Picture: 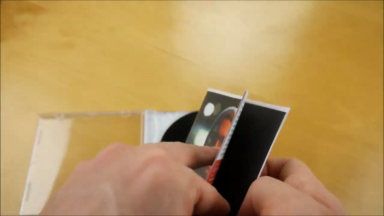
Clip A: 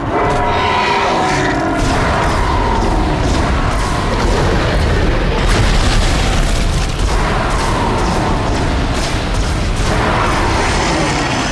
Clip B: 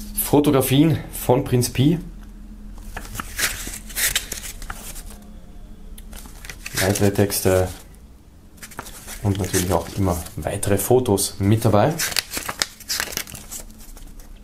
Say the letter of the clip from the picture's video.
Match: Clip B